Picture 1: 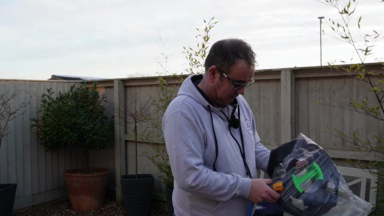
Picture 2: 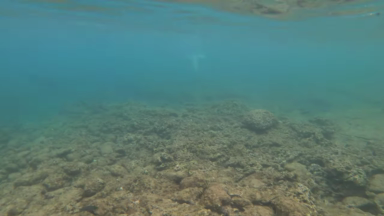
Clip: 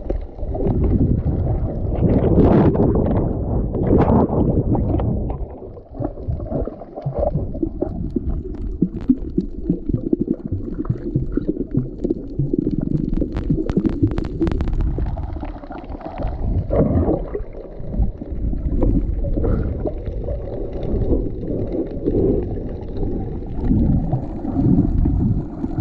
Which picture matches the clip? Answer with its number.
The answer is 2